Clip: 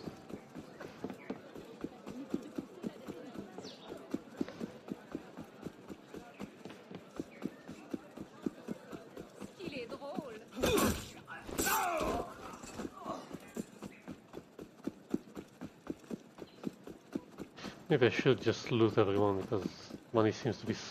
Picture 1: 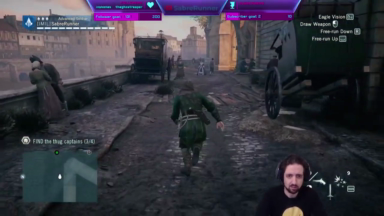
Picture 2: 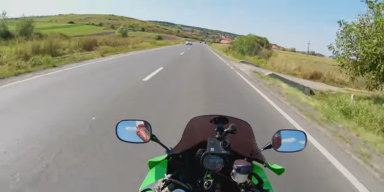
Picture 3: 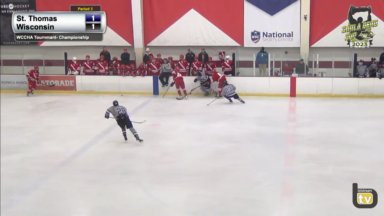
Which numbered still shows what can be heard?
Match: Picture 1